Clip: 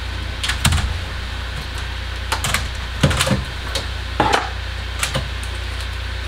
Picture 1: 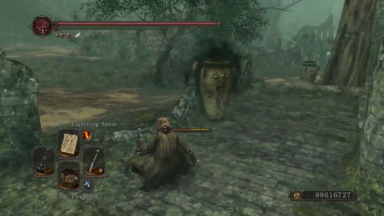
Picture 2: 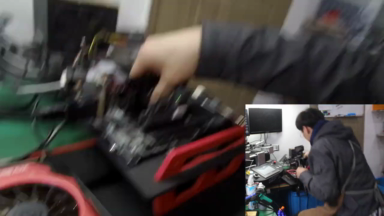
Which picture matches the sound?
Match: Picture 2